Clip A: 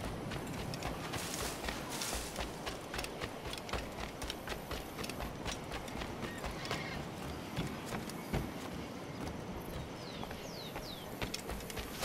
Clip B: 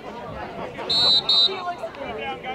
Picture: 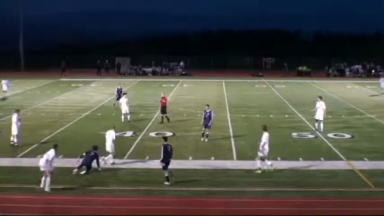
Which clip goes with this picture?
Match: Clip B